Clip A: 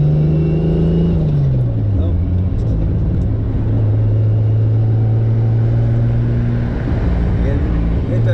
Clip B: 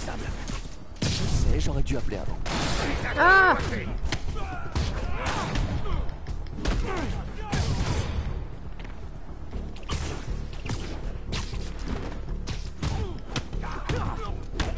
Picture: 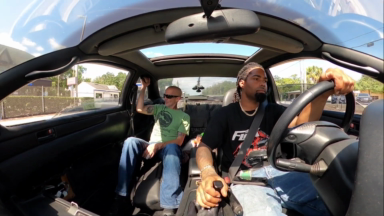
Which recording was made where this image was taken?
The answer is A